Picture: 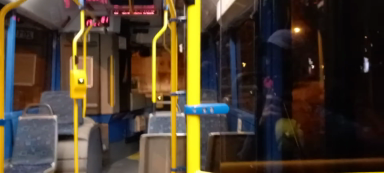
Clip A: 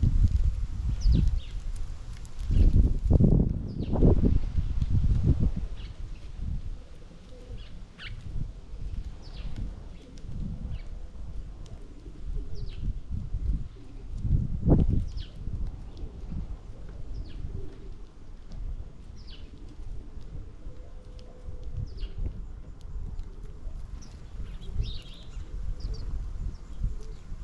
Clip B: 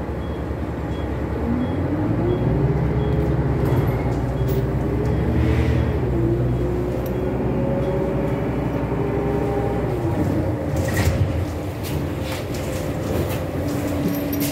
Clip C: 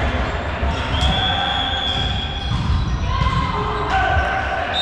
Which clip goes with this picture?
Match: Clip B